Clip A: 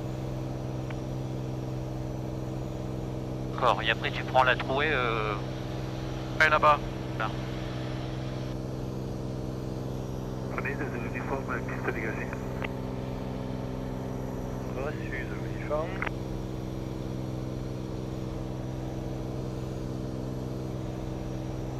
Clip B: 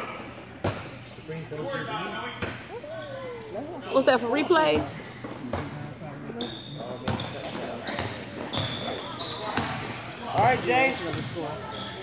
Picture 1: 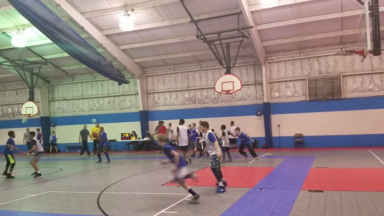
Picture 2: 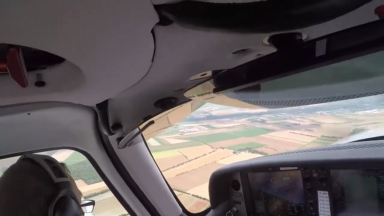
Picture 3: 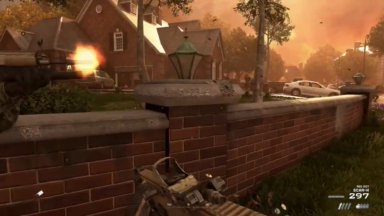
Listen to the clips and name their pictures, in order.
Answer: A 2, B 1